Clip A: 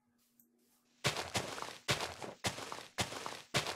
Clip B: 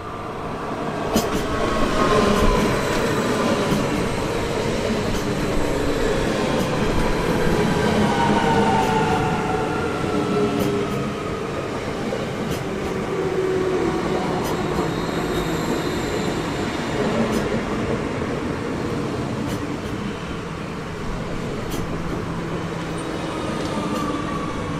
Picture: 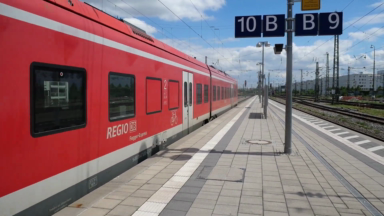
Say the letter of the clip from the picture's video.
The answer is B